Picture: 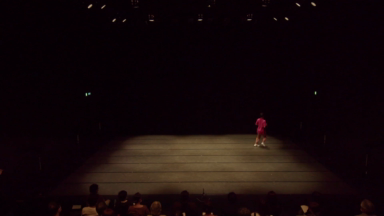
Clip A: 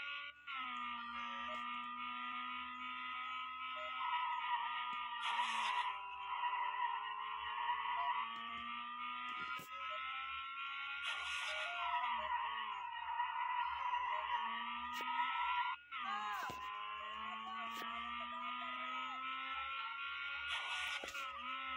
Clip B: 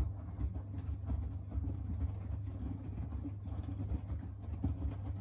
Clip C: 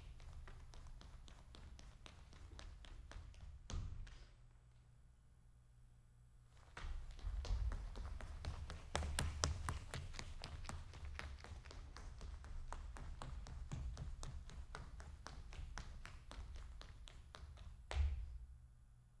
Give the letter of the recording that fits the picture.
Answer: C